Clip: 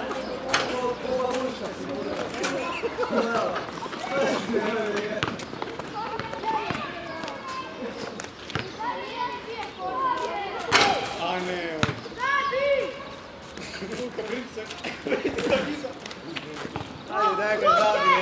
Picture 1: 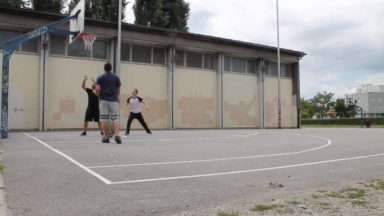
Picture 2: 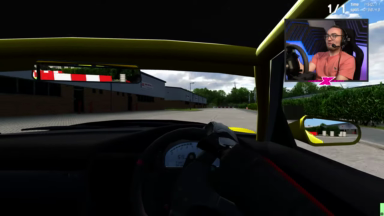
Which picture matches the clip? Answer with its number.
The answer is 1